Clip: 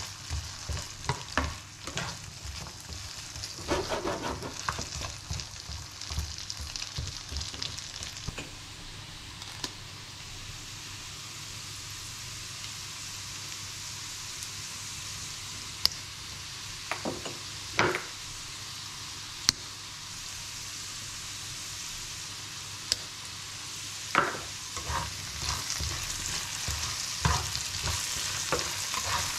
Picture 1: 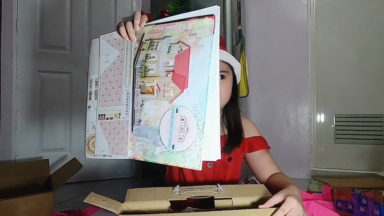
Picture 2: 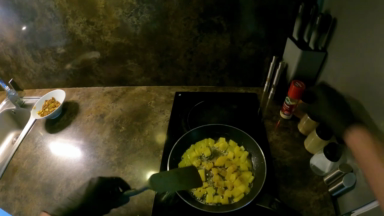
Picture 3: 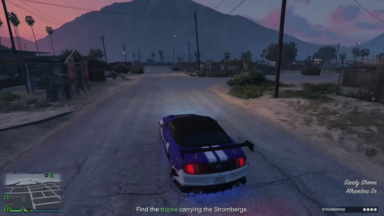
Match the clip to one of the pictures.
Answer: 2